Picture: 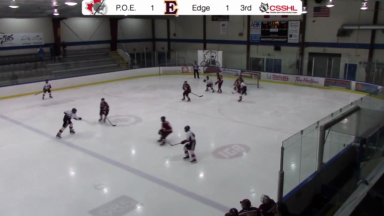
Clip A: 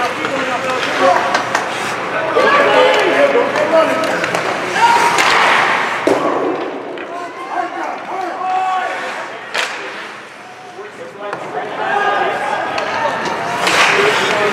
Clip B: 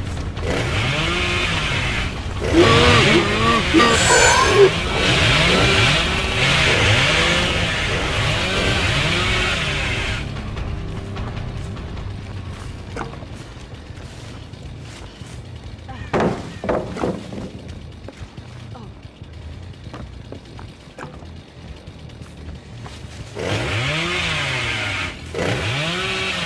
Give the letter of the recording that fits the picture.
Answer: A